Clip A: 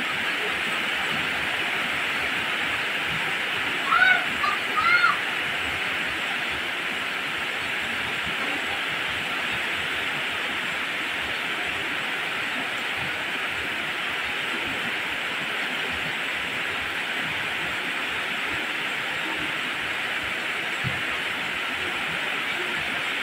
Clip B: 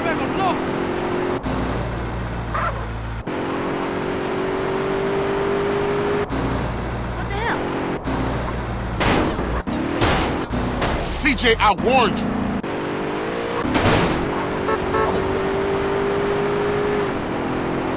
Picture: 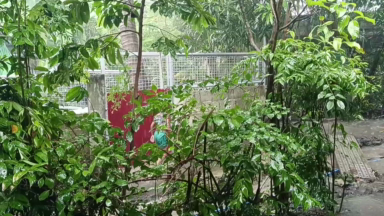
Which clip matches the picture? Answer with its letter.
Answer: A